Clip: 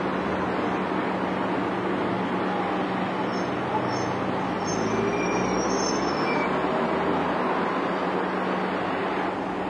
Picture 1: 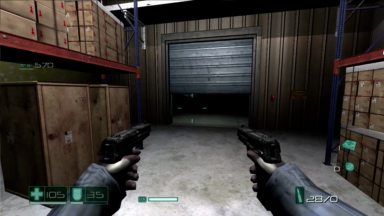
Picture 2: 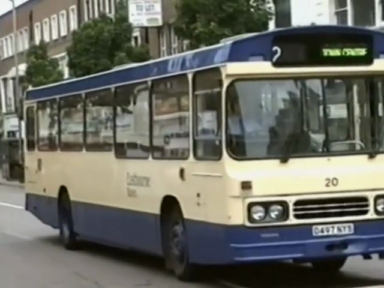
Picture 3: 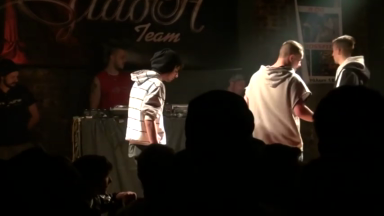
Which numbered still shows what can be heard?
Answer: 2